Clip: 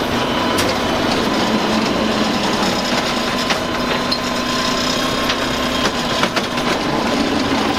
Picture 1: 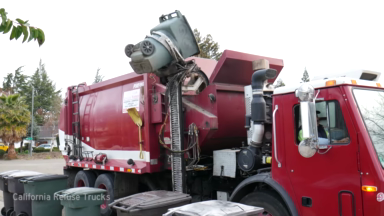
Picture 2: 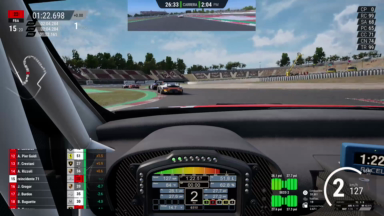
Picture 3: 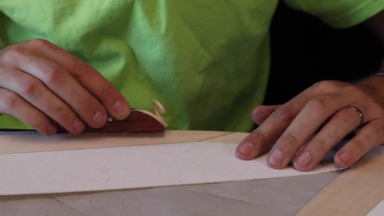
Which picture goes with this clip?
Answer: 1